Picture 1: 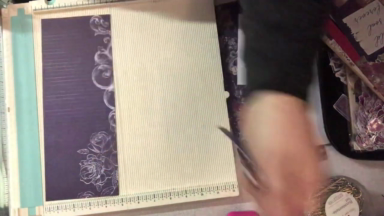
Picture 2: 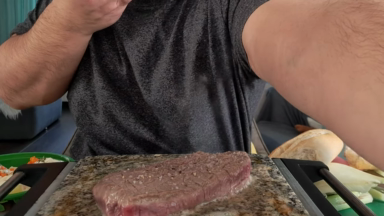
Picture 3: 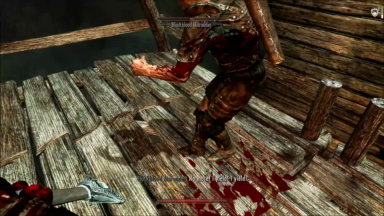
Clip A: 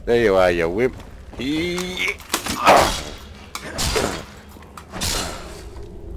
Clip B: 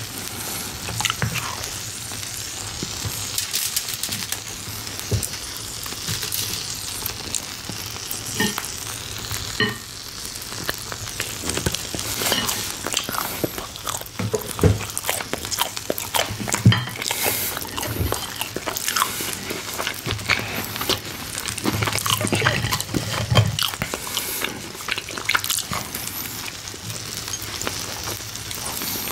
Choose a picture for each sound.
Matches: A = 3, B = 2